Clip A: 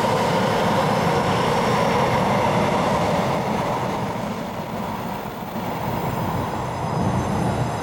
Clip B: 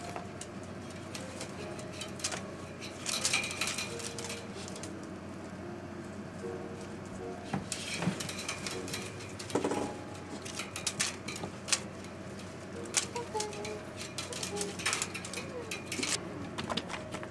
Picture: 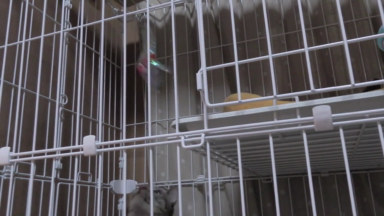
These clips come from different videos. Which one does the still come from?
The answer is B